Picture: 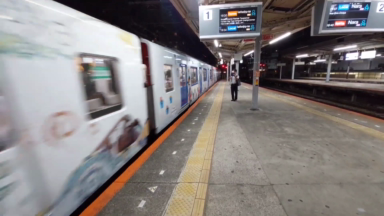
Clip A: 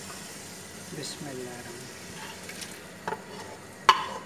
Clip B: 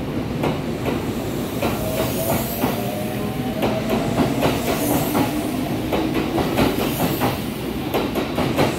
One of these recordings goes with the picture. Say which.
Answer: B